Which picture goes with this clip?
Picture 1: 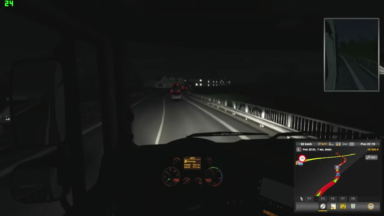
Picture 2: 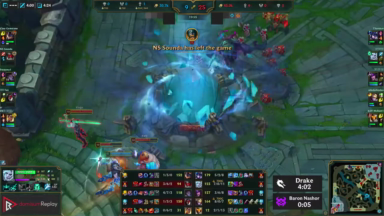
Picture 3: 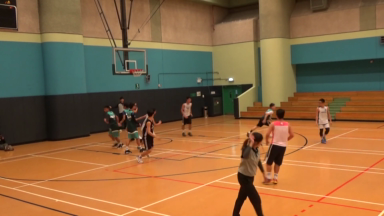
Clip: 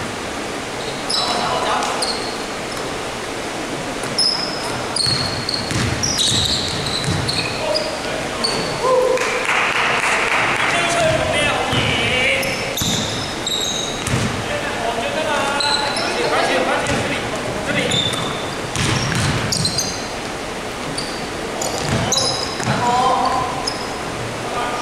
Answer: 3